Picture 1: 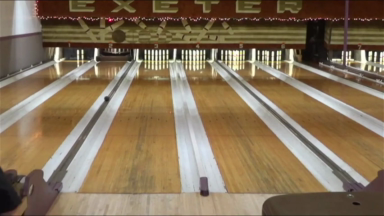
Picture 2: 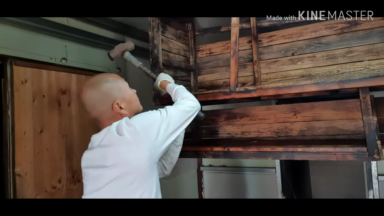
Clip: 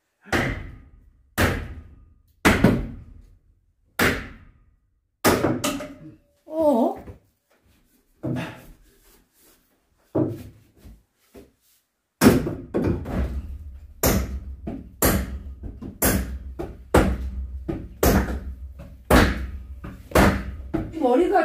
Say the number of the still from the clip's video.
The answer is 2